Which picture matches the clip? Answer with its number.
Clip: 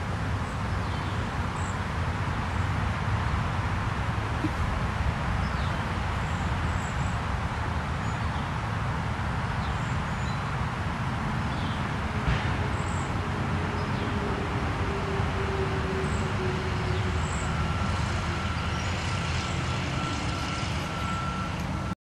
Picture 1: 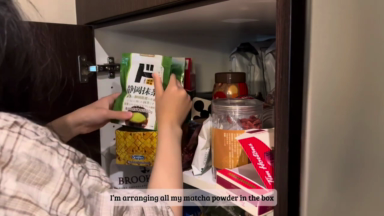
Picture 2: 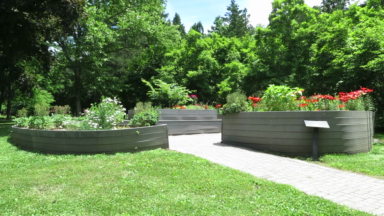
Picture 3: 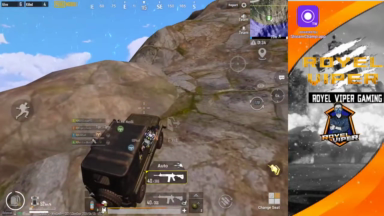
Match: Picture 2